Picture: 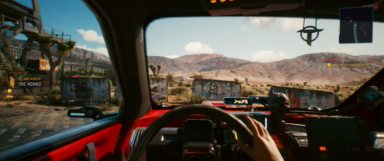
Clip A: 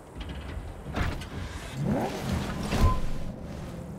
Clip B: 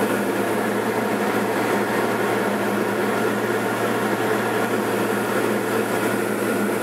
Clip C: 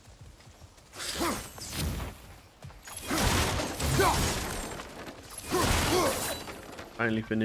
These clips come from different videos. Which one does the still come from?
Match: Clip A